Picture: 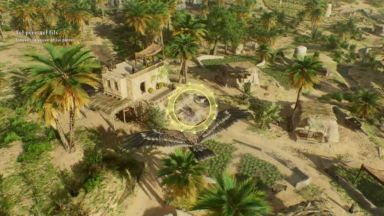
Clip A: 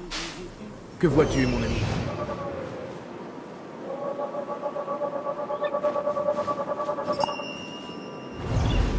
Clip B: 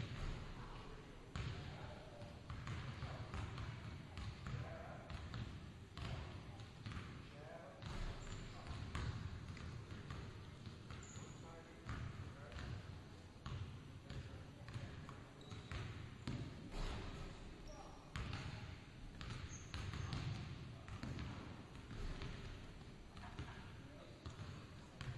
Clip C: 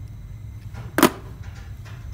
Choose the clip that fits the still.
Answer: A